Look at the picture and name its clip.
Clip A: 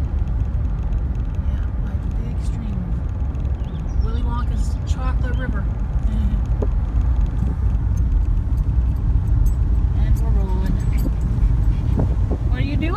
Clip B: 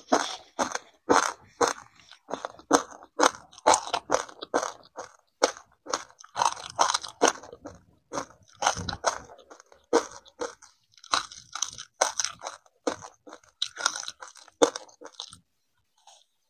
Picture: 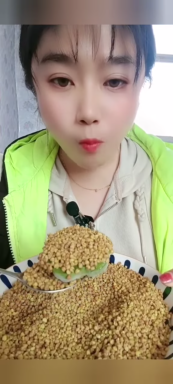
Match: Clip B